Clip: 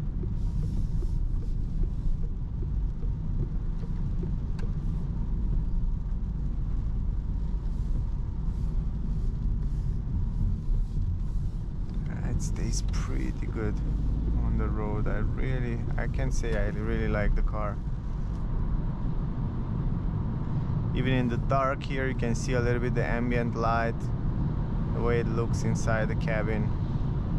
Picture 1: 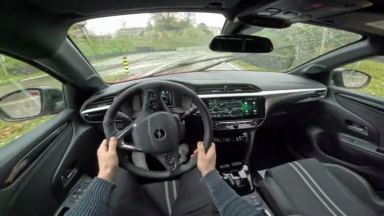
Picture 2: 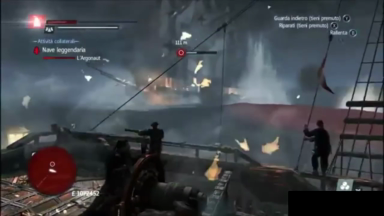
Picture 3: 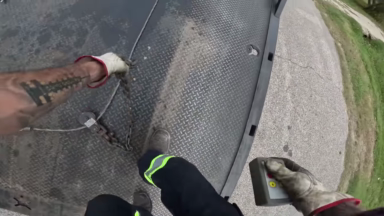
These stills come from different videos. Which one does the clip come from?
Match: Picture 1